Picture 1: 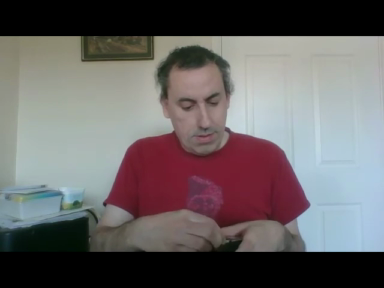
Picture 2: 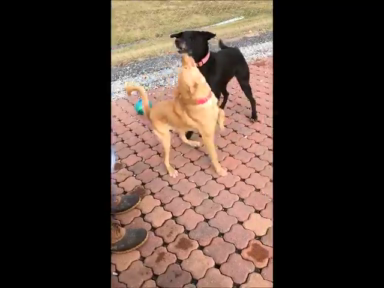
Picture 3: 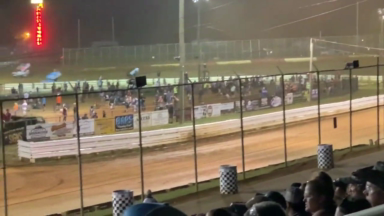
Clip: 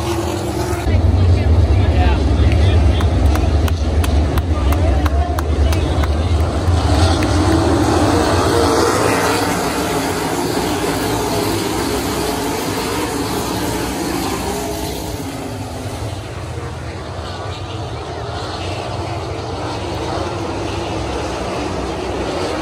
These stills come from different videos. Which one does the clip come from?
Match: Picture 3